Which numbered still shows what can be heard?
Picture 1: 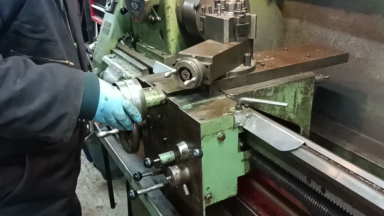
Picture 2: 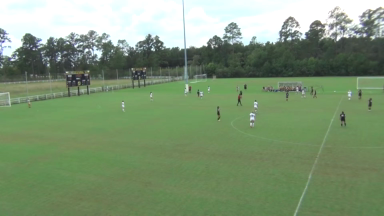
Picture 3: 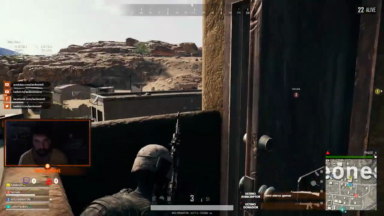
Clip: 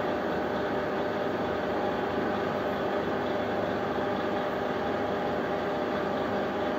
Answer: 1